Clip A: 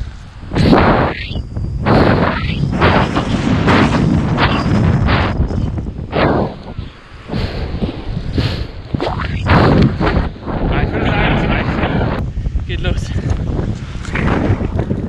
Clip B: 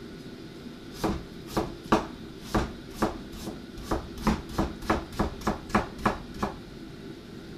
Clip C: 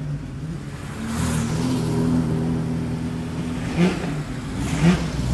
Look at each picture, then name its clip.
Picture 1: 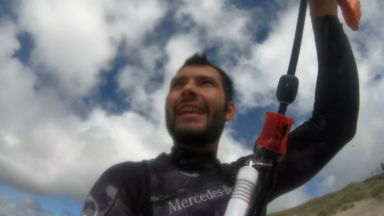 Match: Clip A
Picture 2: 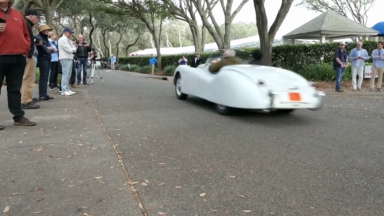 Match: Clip C